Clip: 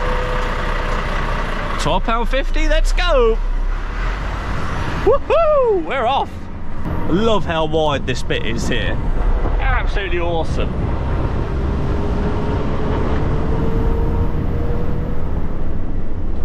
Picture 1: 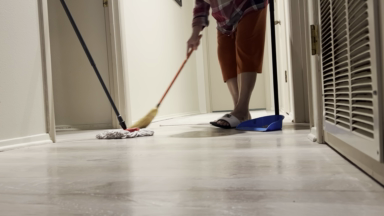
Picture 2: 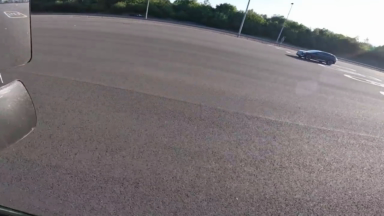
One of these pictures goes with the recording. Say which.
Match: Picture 2